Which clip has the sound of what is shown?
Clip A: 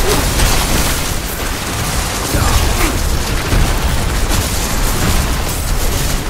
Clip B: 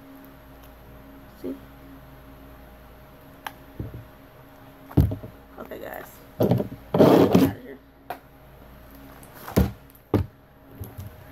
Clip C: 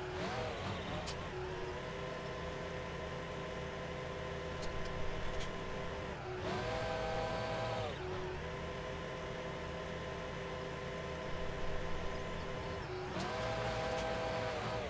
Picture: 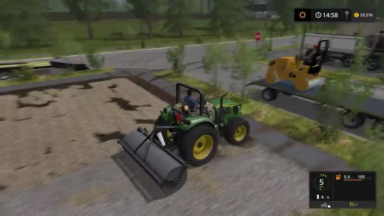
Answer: C